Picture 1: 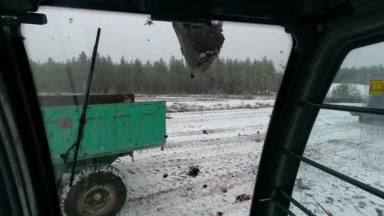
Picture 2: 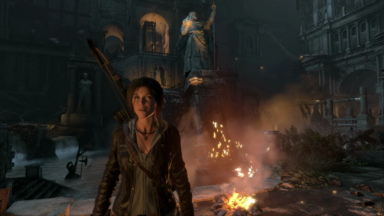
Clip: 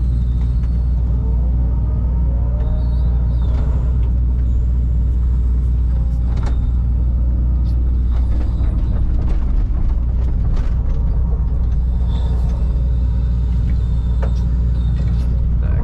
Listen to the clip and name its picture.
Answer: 1